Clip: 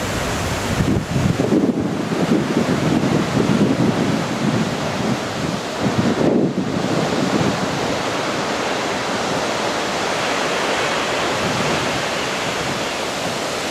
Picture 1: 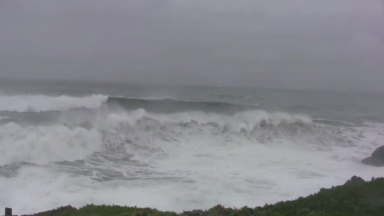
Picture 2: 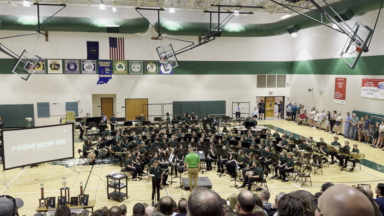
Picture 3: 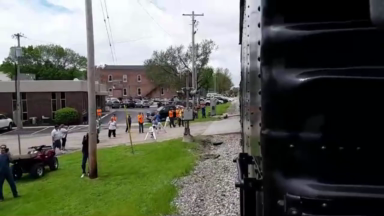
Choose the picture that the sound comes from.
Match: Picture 1